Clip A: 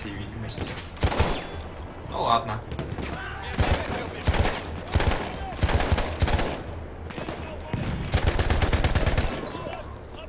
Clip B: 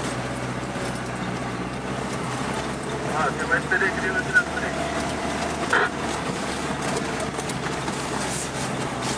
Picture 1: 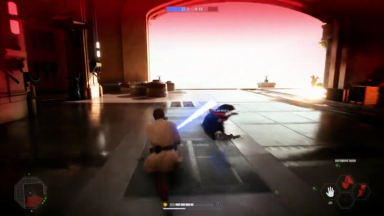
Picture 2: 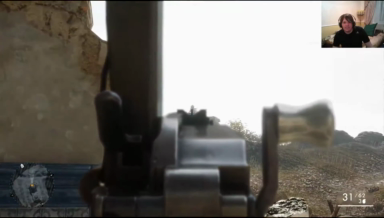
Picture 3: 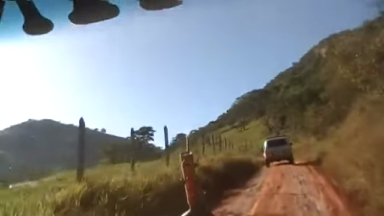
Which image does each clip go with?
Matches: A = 2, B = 3